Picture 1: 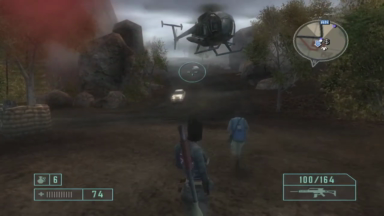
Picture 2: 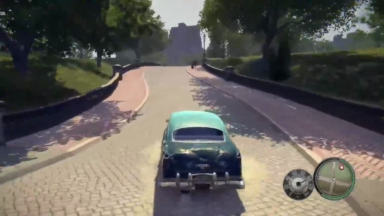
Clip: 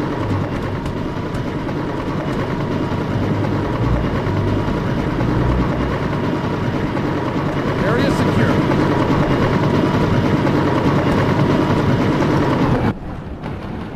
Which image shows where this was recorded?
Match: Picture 1